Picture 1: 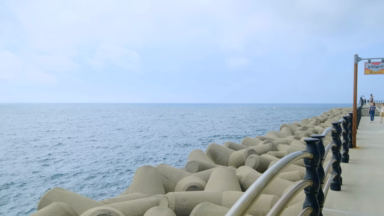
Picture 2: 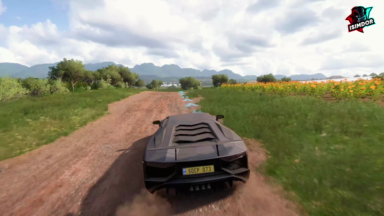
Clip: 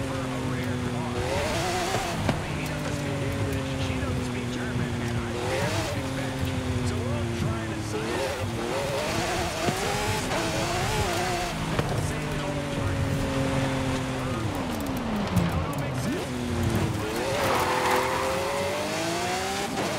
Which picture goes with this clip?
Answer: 2